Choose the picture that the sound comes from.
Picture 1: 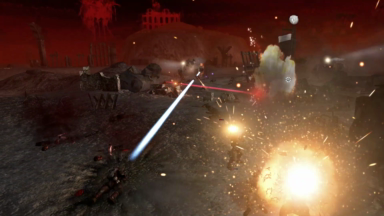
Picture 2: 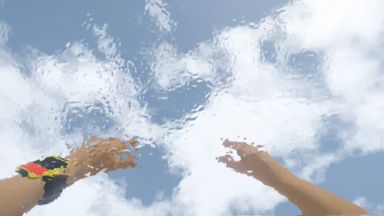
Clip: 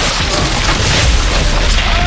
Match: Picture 1